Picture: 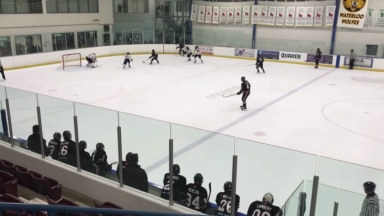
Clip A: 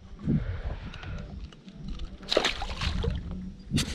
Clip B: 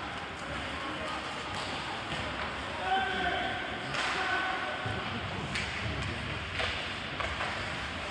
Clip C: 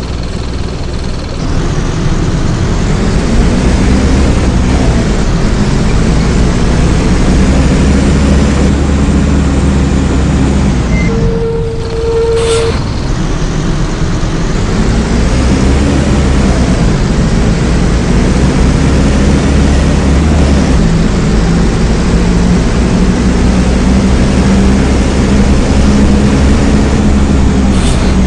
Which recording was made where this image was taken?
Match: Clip B